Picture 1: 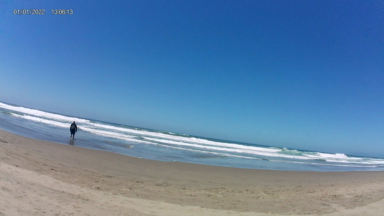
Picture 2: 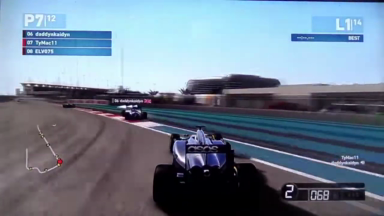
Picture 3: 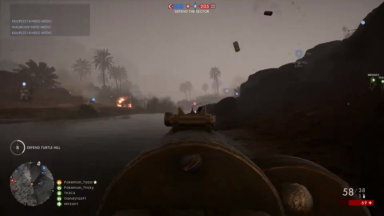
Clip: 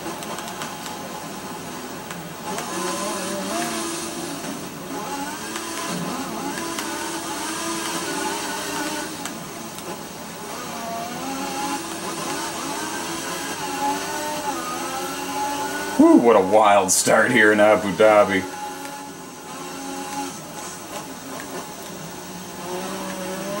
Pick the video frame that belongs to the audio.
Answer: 2